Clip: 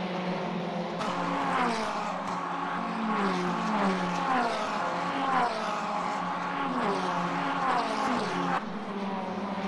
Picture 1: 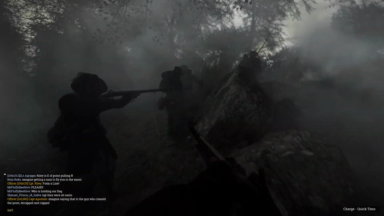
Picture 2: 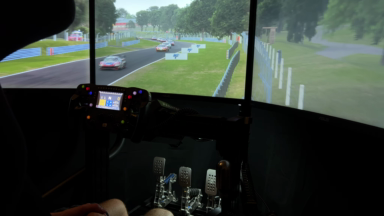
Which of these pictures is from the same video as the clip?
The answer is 2